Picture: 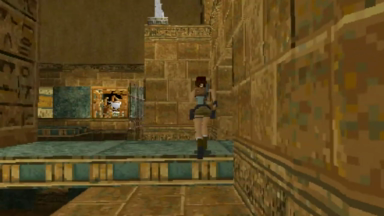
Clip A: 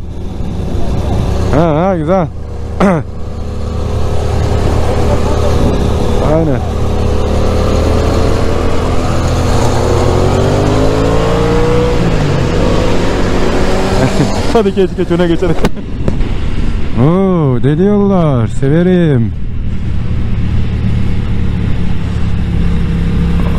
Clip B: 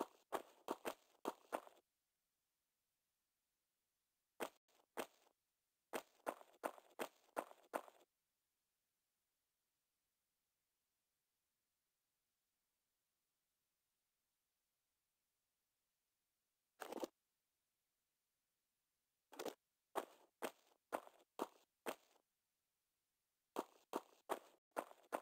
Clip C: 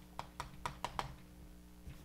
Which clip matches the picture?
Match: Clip B